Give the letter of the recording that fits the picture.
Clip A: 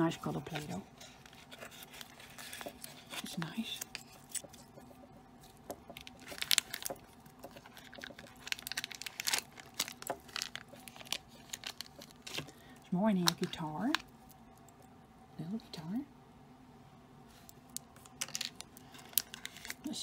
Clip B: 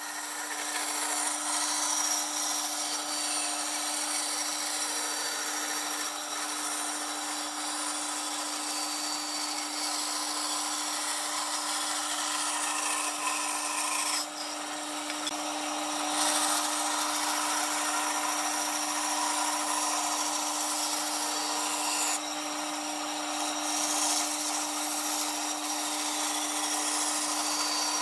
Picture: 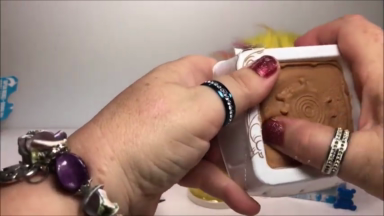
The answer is A